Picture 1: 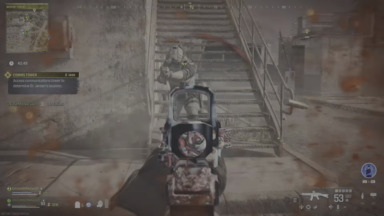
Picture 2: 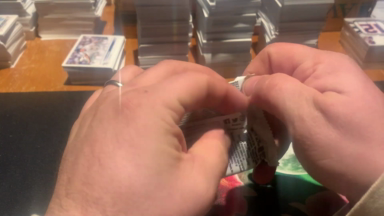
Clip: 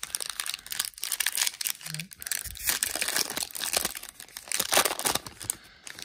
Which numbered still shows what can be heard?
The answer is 2